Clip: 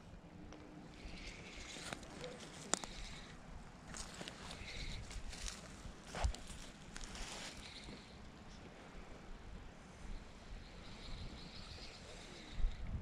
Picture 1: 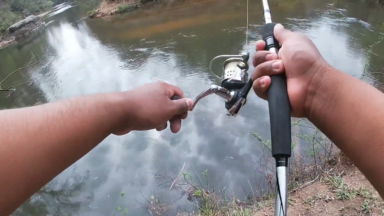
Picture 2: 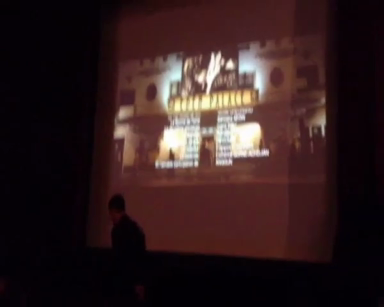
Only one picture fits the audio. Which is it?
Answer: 1